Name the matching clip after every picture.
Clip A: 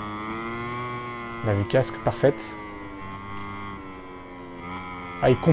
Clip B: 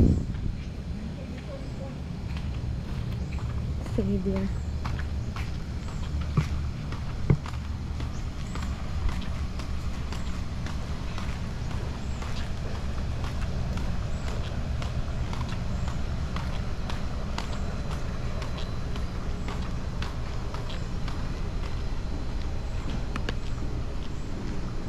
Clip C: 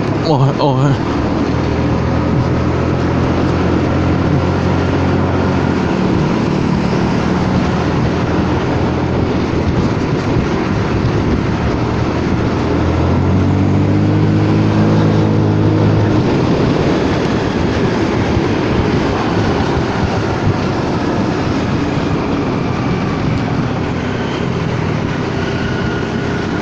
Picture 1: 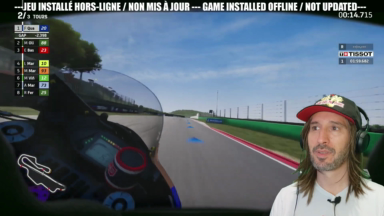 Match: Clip A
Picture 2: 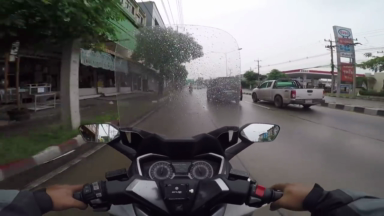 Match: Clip C